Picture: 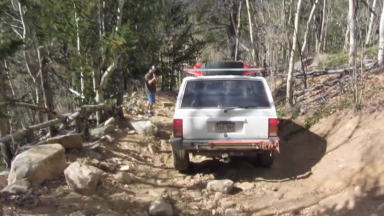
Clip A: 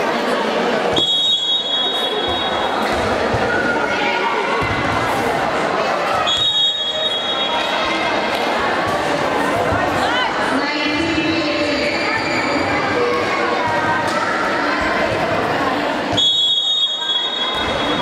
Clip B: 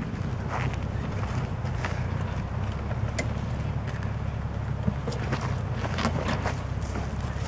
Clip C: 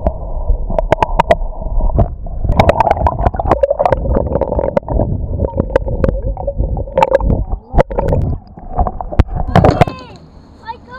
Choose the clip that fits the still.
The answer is B